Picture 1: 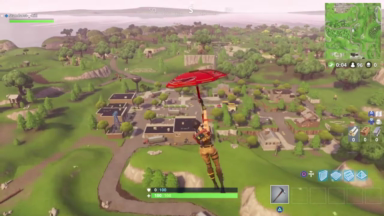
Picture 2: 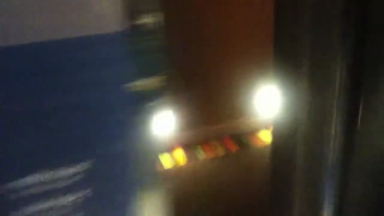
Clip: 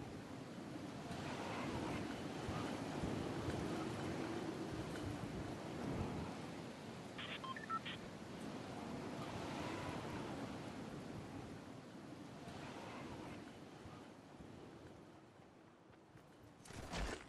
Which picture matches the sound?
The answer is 1